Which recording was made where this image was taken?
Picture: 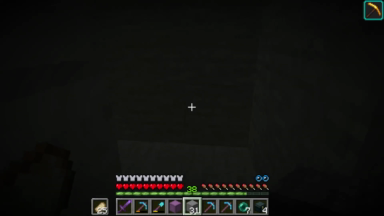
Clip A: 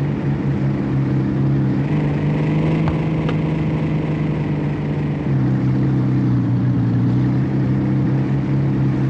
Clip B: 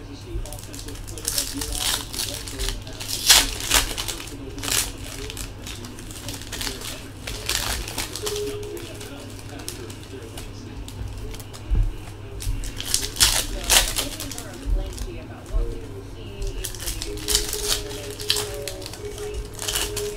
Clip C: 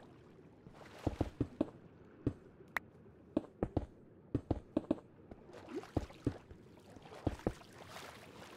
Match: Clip C